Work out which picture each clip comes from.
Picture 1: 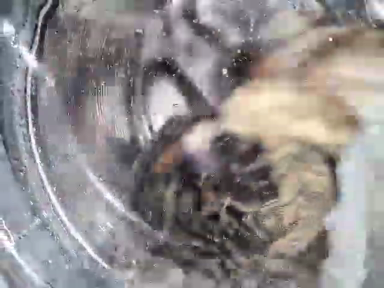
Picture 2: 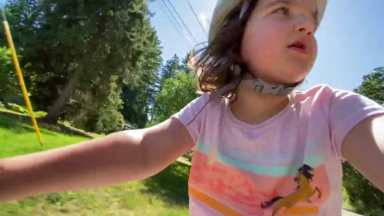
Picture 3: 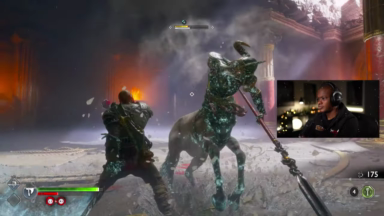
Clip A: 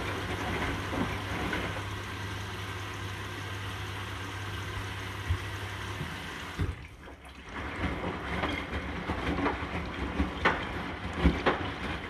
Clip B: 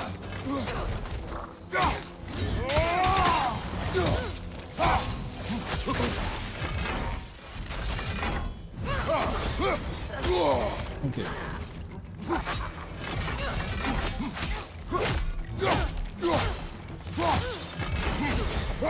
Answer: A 1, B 3